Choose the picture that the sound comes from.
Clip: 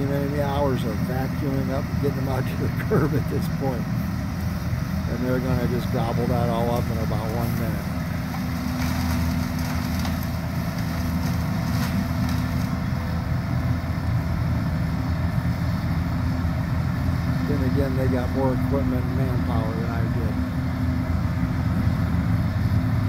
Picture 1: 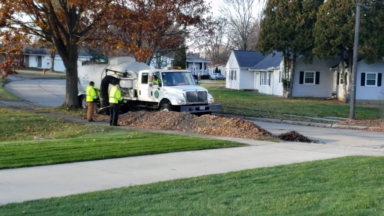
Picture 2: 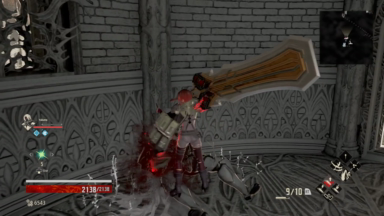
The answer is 1